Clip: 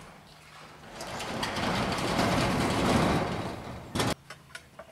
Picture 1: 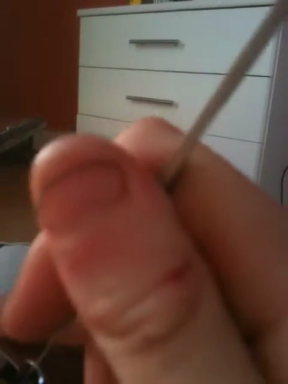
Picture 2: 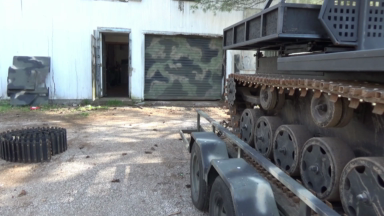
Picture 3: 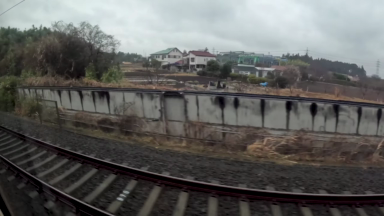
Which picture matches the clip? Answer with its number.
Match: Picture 2